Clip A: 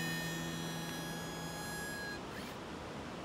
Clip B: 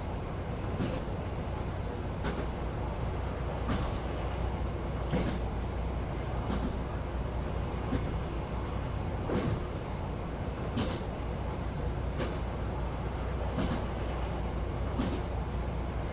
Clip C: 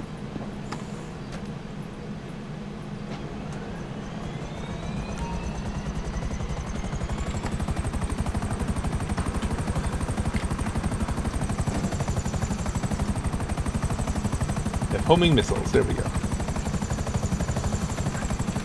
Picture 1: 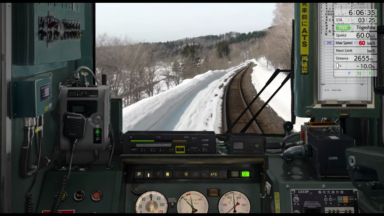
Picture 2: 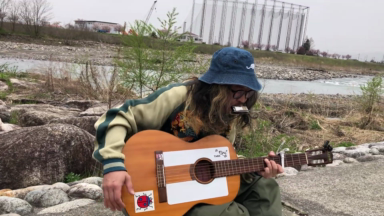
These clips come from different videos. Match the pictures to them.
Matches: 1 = B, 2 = A